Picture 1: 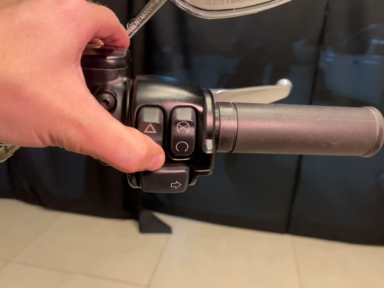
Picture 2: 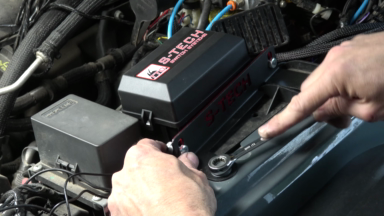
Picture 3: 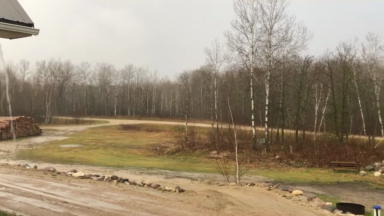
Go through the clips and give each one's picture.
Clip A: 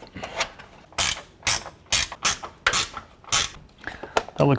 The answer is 2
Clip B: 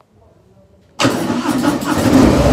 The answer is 1